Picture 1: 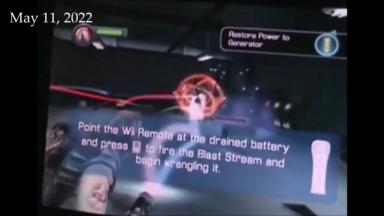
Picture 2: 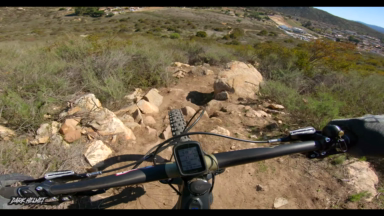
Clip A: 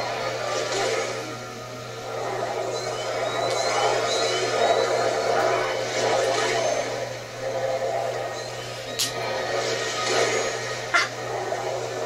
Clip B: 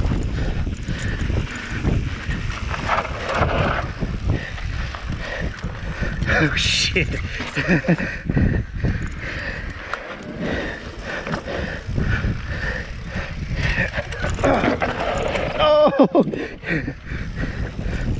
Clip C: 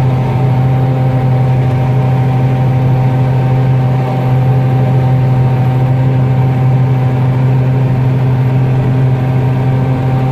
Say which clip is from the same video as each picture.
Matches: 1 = A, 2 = B